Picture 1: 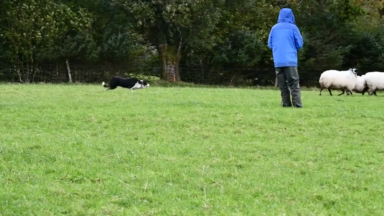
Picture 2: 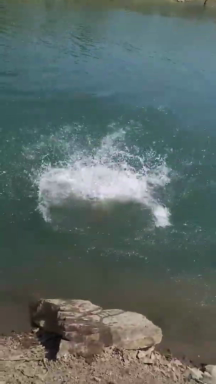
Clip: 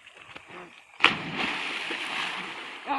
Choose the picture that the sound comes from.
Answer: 2